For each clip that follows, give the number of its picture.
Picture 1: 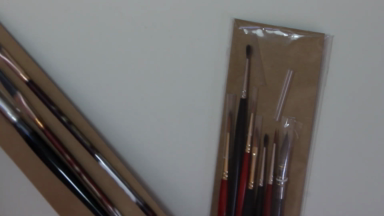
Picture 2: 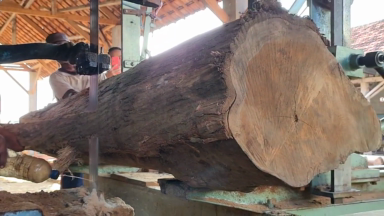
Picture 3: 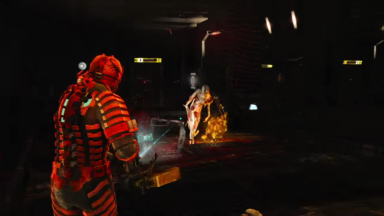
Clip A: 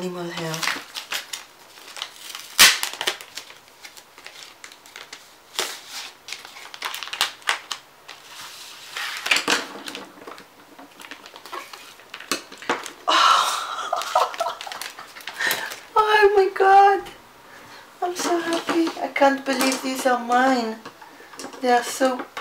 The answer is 1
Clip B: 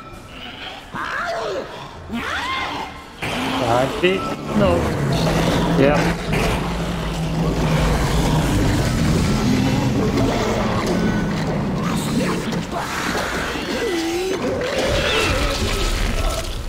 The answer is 3